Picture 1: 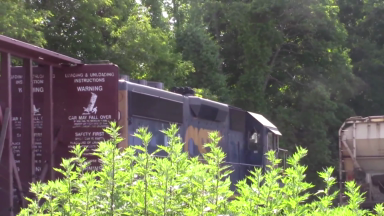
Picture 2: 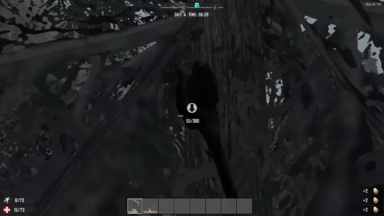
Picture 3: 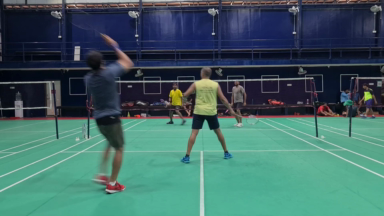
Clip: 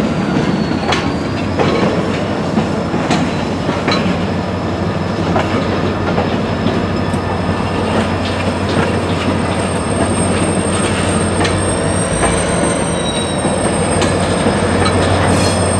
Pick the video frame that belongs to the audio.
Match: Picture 1